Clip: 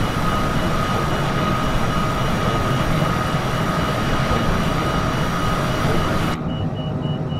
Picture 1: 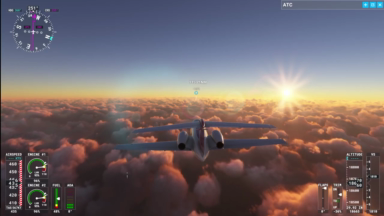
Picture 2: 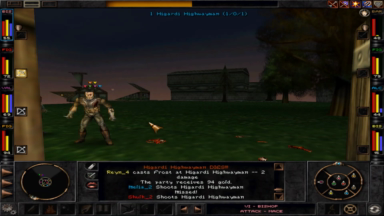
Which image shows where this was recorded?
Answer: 1